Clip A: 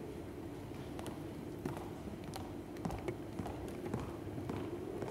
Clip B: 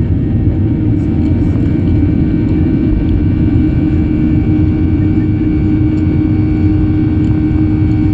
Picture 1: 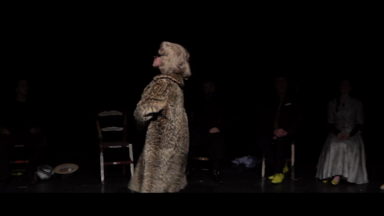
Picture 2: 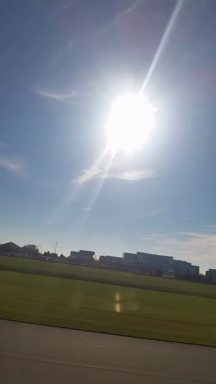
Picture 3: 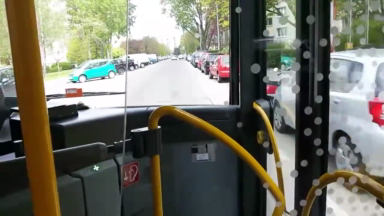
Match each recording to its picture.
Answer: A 1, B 2